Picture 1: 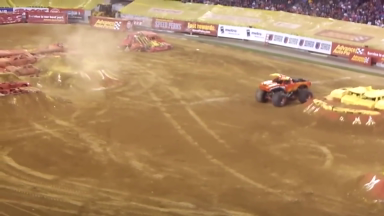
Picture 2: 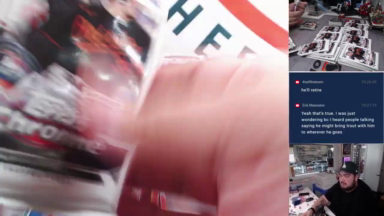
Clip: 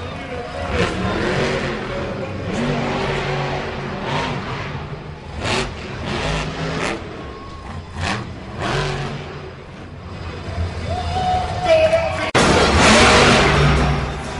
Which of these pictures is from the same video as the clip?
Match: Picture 1